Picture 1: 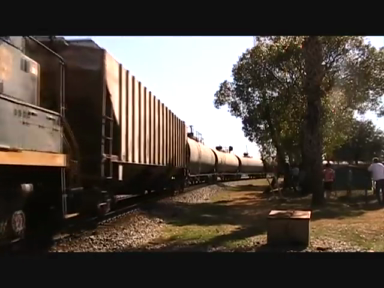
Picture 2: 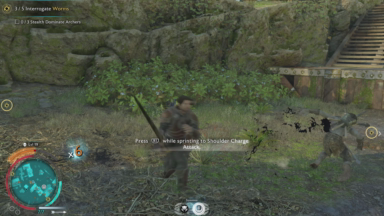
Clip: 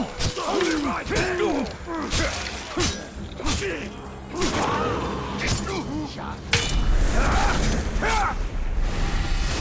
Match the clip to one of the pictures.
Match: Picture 2